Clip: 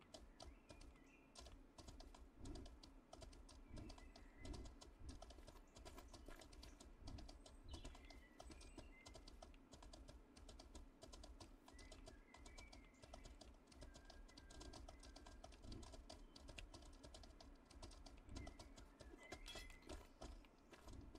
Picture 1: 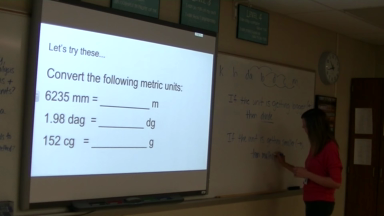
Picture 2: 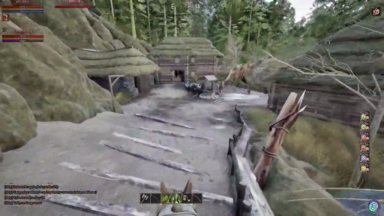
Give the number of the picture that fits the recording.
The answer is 2